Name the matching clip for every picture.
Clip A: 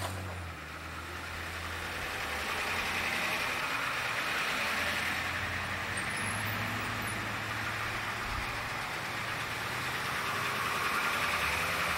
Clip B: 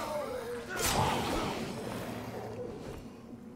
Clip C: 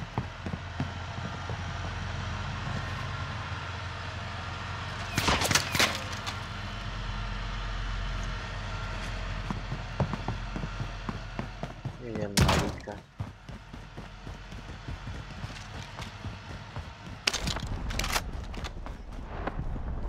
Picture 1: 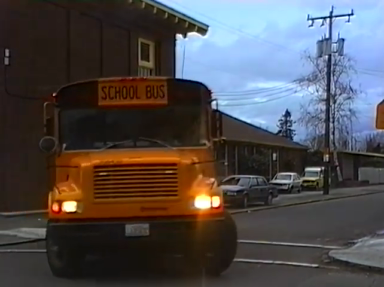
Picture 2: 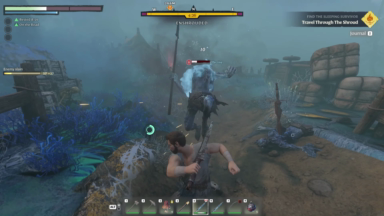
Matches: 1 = A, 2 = B